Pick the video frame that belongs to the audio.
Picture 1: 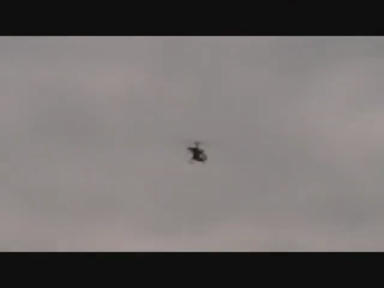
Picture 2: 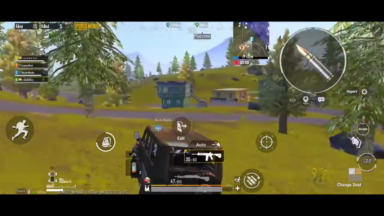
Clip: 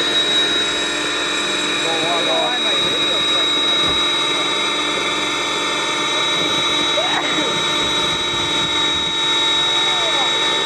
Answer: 1